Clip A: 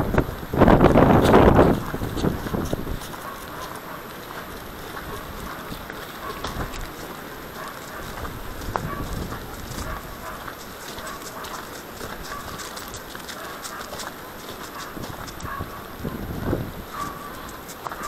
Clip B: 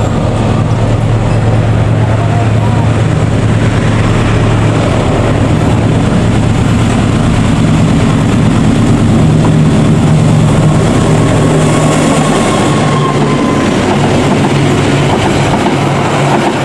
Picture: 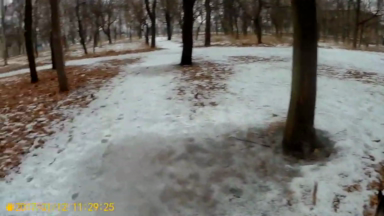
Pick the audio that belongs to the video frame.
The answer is A